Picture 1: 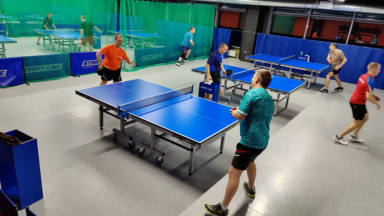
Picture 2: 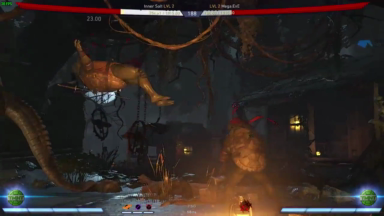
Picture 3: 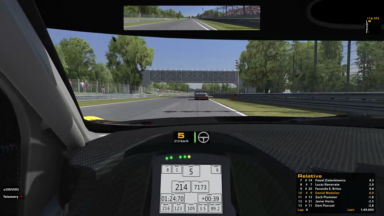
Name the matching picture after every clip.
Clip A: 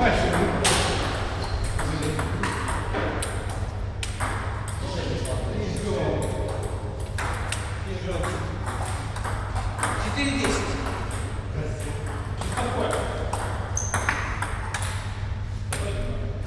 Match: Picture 1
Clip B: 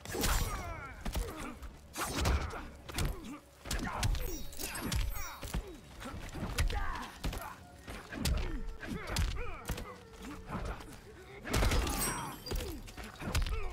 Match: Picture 2